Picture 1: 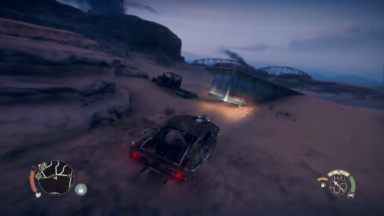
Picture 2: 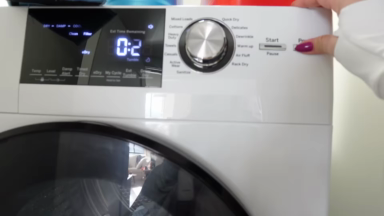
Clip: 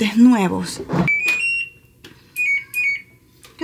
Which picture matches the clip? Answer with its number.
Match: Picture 2